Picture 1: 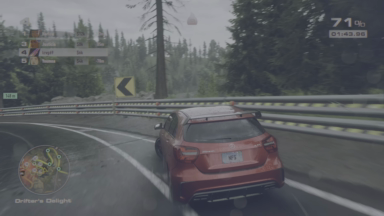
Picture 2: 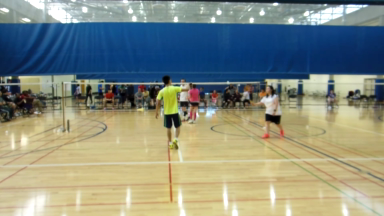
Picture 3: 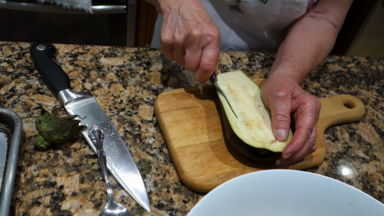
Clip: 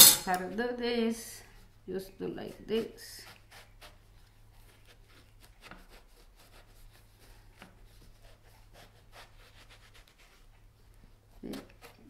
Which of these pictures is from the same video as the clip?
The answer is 3